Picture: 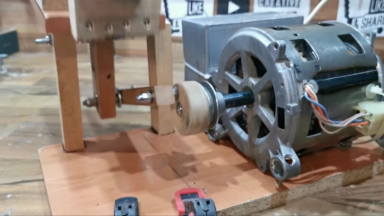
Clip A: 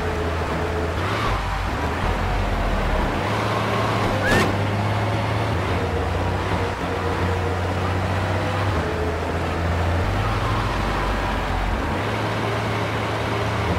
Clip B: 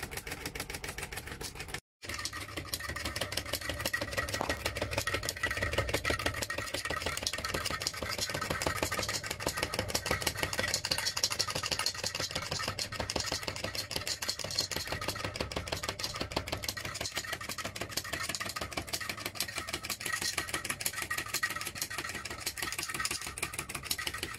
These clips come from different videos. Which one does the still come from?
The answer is B